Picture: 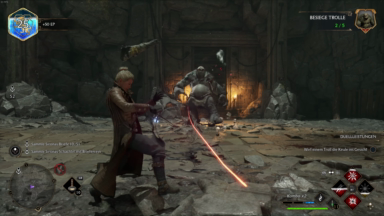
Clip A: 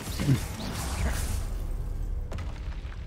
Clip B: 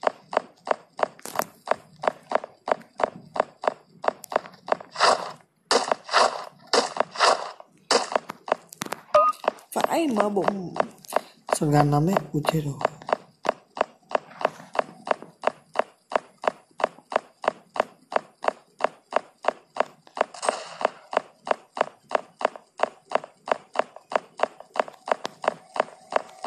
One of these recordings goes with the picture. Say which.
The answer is A